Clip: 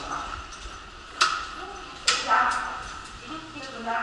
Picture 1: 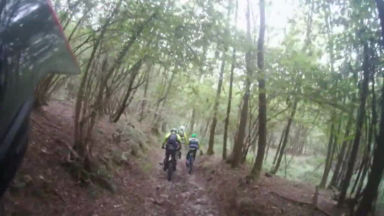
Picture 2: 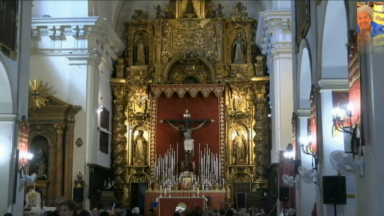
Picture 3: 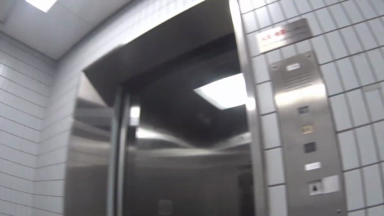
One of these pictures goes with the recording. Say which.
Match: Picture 3